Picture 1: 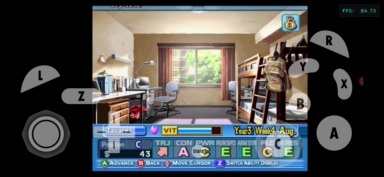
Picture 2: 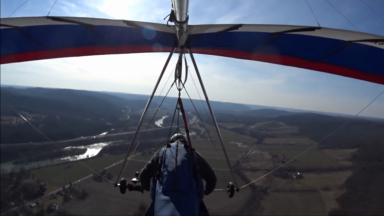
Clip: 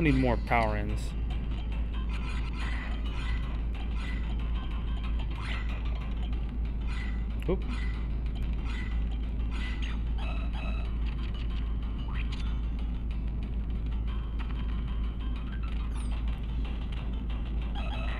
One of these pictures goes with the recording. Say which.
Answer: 1